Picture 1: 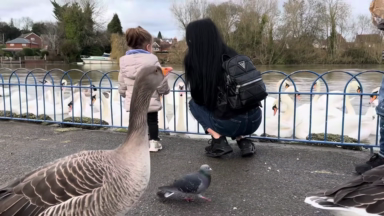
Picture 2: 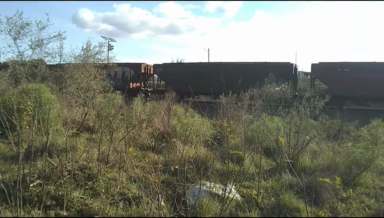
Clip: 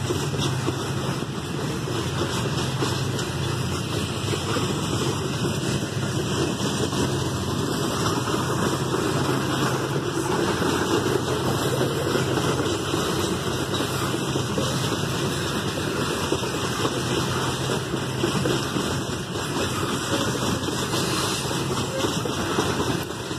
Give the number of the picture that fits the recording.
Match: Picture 2